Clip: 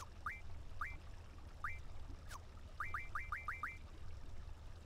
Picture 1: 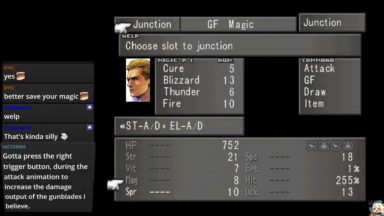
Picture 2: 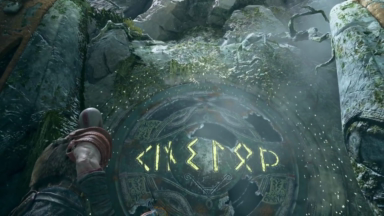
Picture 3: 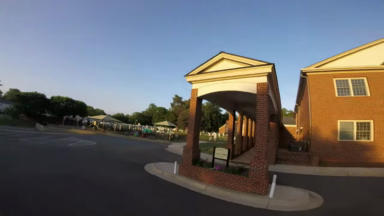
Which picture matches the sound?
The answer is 1